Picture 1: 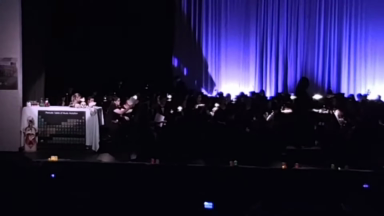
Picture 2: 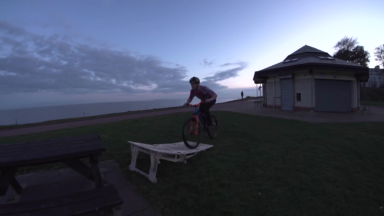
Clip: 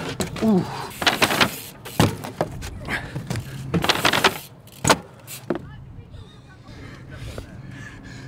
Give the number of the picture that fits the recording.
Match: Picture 2